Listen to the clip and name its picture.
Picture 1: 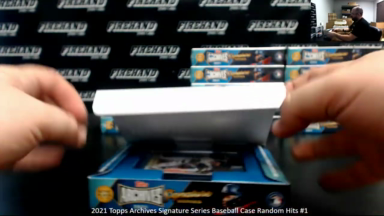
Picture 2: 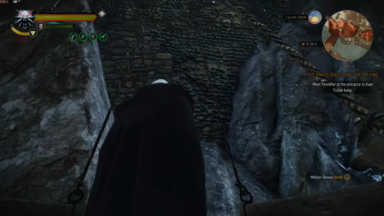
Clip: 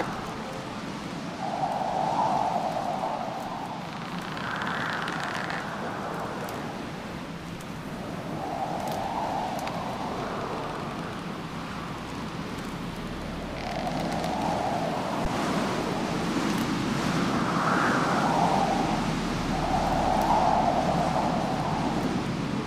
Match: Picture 2